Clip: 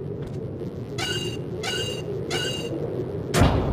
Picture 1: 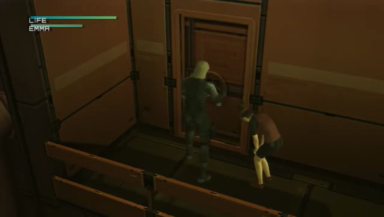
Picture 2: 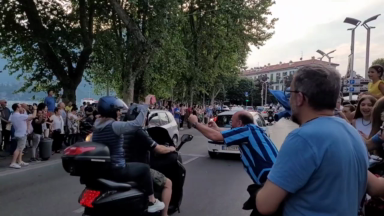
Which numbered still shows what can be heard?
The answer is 1